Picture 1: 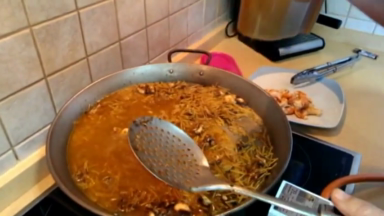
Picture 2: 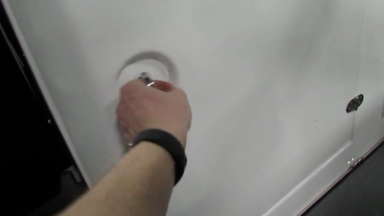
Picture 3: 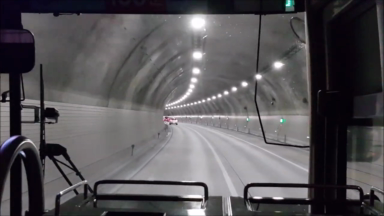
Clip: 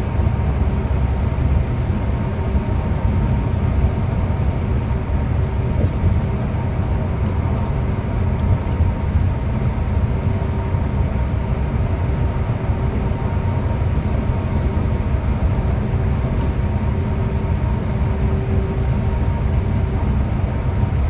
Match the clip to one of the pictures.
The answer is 3